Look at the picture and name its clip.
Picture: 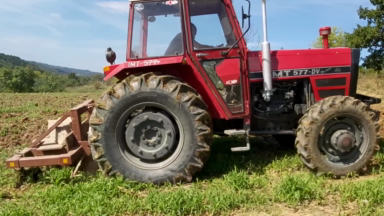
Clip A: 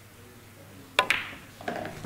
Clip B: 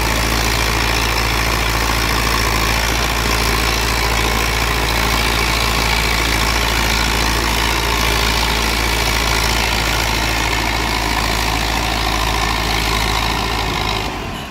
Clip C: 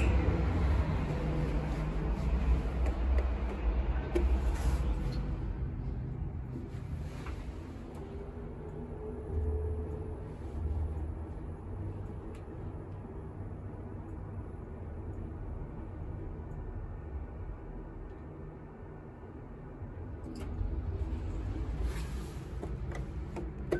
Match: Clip B